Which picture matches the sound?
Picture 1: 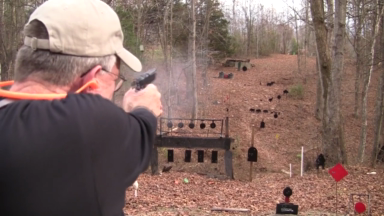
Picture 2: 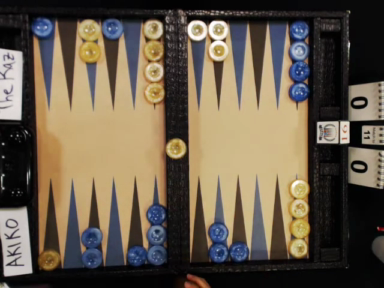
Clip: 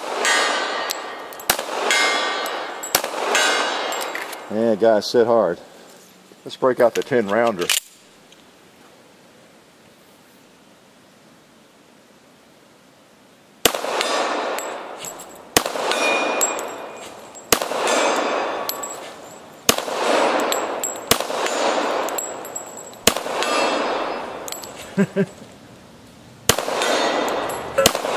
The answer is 1